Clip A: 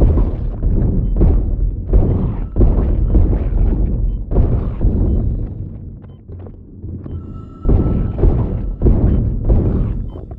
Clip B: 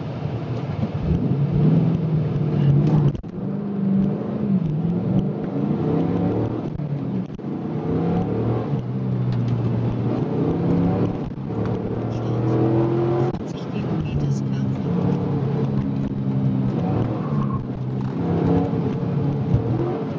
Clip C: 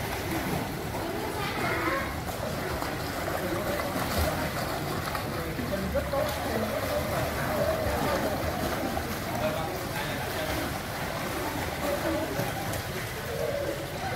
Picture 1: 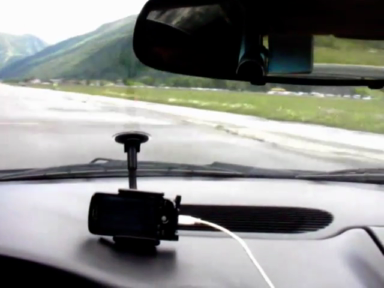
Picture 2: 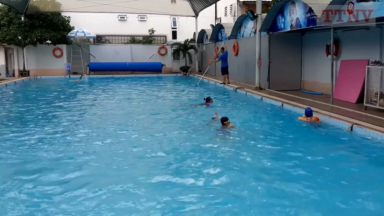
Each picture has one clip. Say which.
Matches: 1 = B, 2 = C